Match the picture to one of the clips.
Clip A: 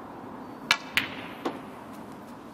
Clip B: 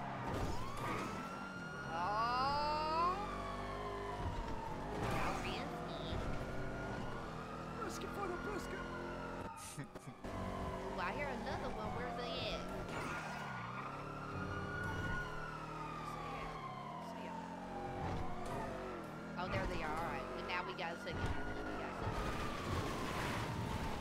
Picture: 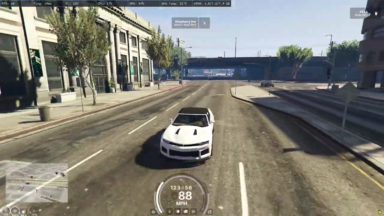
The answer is B